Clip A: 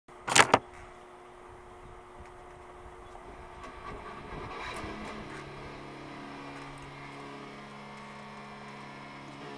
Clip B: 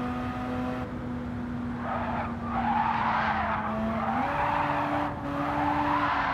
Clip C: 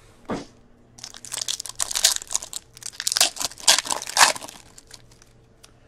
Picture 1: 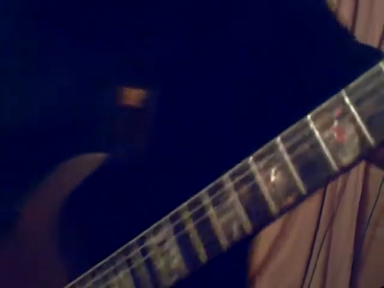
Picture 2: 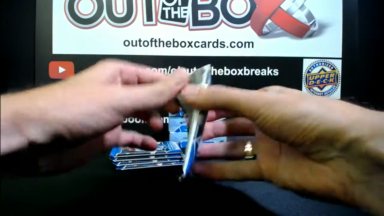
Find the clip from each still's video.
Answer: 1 A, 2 C